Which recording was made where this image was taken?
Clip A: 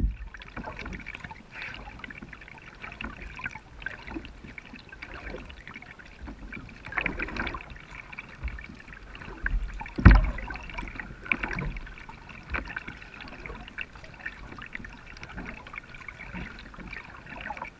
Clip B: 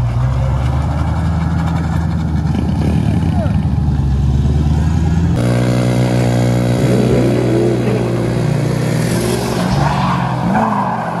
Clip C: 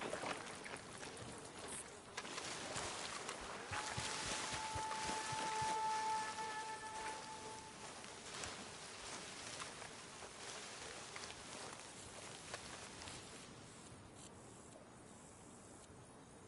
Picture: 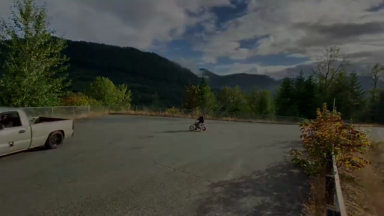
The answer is B